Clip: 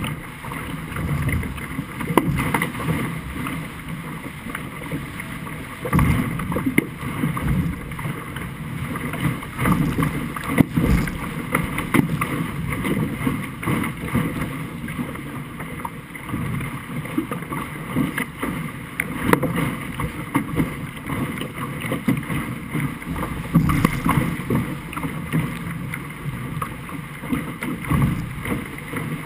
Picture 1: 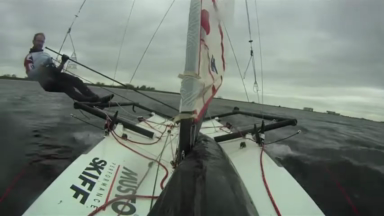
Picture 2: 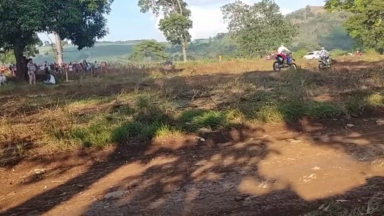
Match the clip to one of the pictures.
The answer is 1